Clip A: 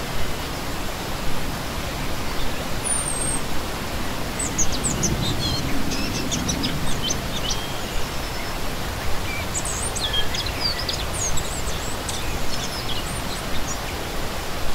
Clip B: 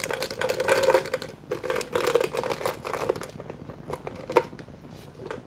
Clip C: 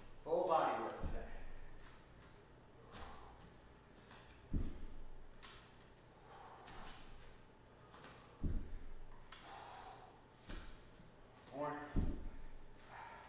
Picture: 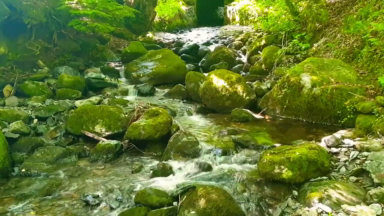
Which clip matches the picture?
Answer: A